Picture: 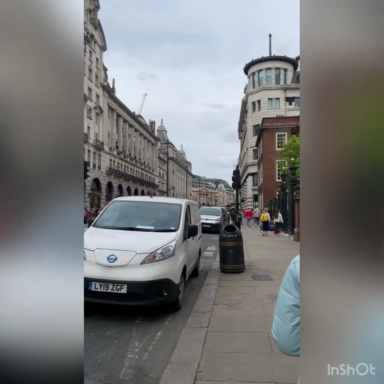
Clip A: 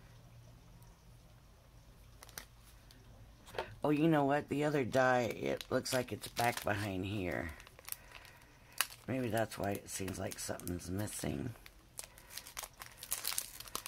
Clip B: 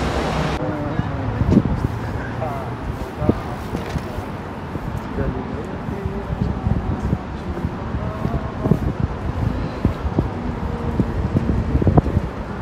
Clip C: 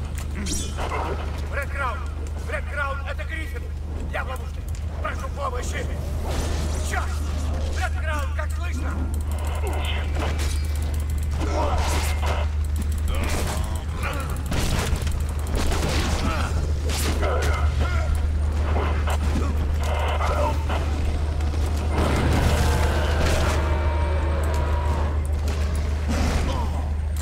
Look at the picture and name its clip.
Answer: B